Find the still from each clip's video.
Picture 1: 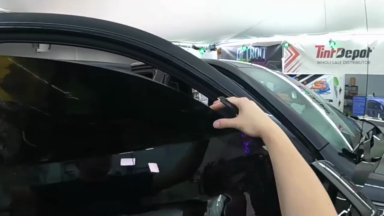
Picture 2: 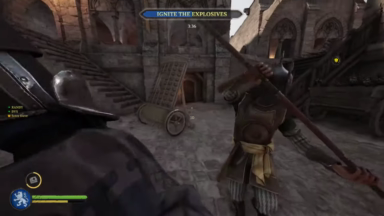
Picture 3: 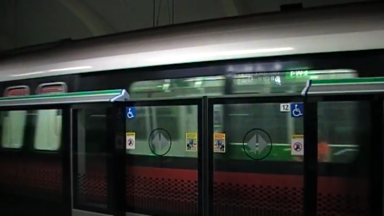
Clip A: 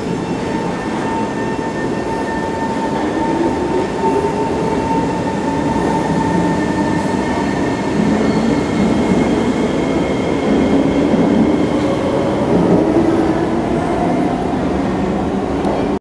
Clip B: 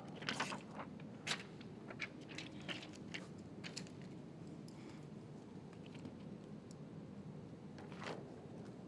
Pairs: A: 3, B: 1